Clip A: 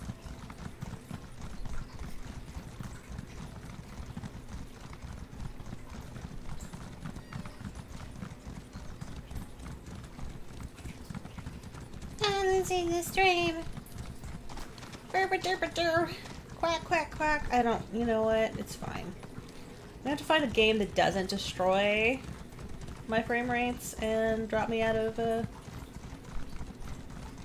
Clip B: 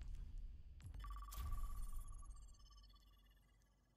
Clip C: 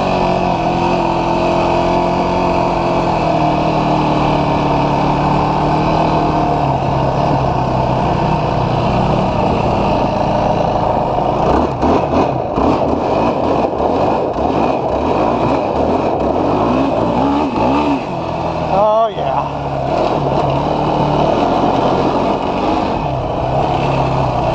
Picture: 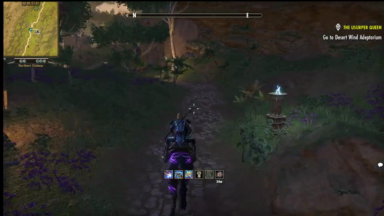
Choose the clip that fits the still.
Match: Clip A